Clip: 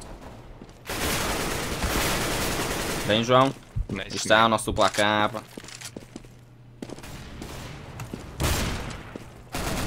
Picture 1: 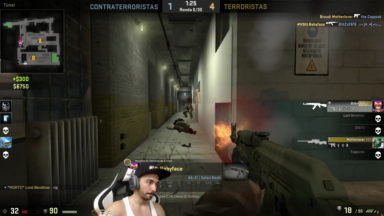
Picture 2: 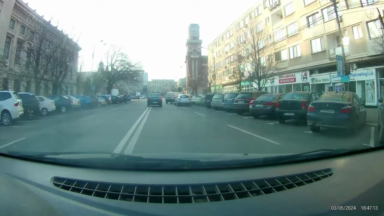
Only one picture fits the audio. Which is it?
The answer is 1